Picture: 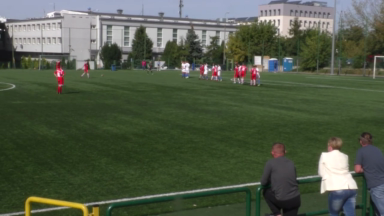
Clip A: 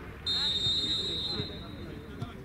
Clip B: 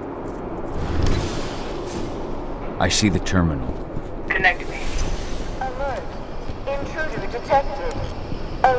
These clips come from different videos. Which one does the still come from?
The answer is A